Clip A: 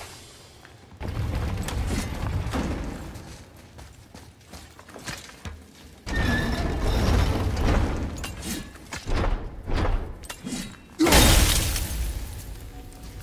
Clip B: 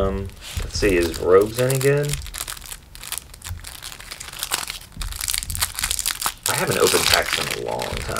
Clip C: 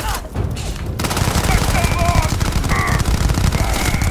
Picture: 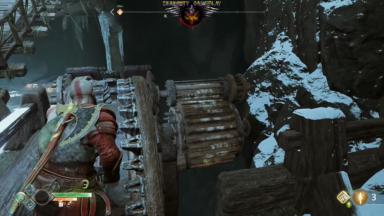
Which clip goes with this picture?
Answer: A